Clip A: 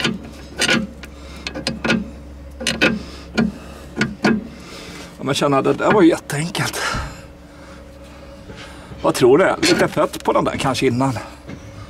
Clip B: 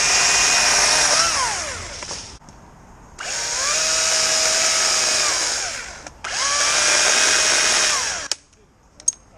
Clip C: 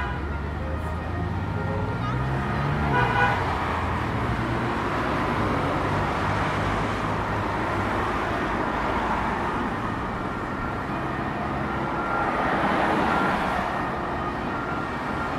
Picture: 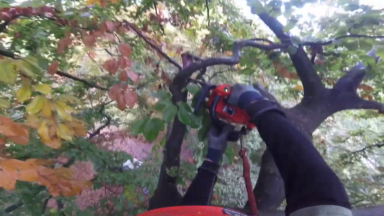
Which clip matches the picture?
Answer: B